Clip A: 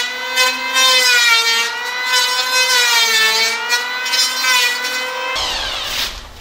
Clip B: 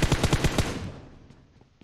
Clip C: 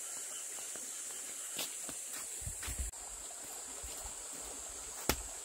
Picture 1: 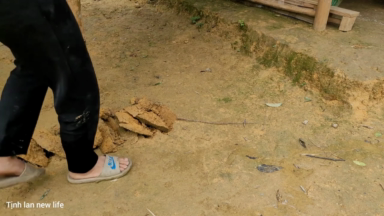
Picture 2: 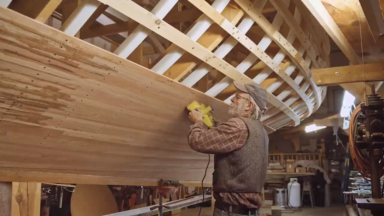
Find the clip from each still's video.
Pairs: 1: C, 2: A